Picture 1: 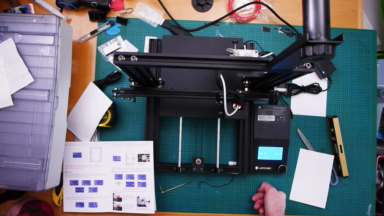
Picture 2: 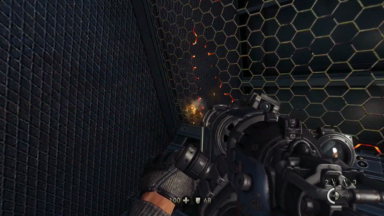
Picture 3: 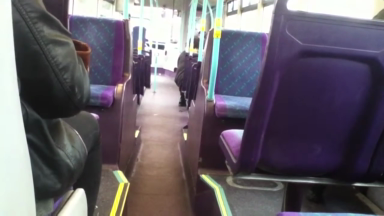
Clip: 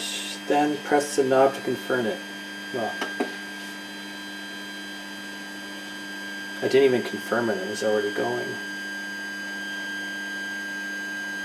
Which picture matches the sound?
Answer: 1